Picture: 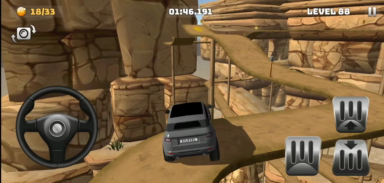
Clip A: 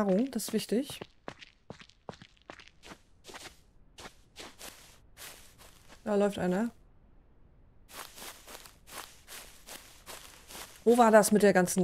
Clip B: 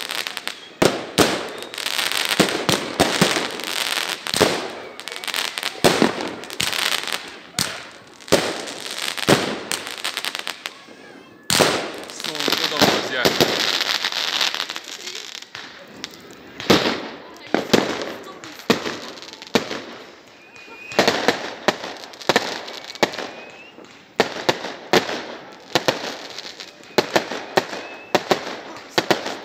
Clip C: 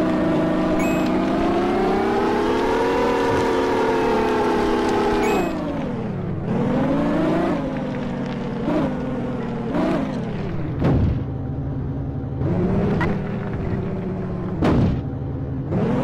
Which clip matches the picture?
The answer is C